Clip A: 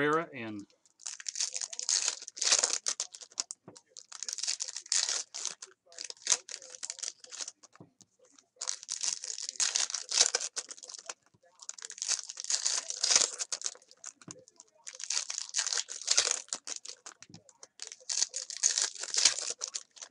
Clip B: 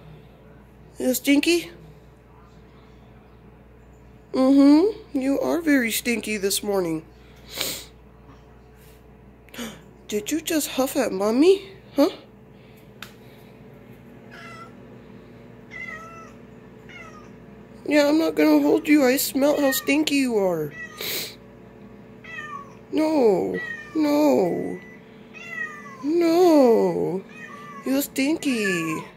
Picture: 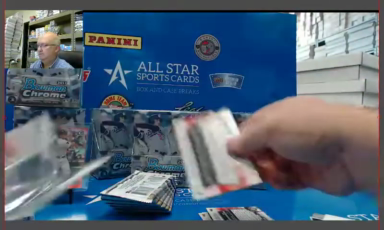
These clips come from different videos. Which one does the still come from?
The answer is A